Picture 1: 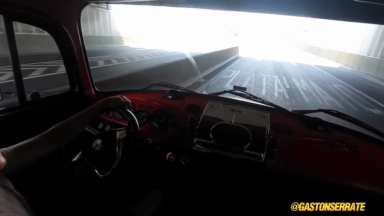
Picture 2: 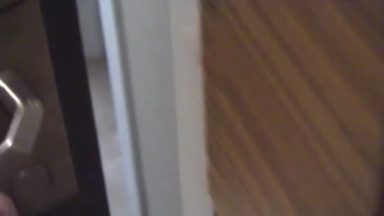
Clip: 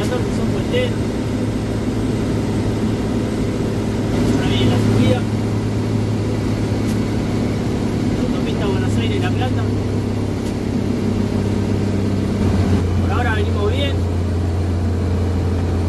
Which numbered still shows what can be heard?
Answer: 1